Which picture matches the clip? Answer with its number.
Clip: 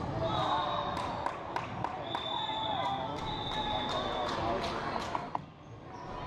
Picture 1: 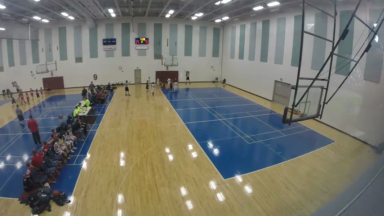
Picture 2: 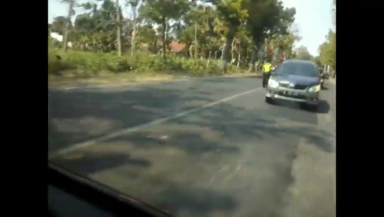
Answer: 1